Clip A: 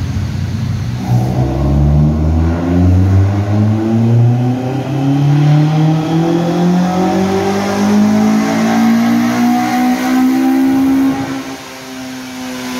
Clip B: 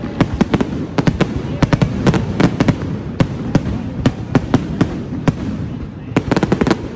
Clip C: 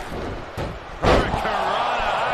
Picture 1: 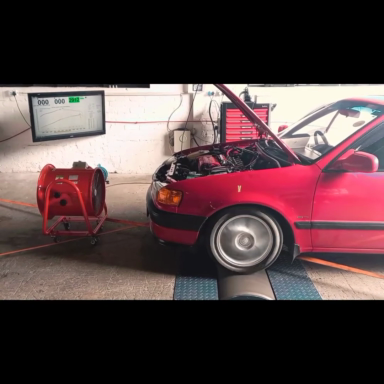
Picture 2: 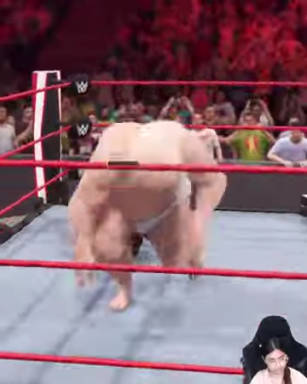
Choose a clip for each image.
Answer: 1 A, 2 C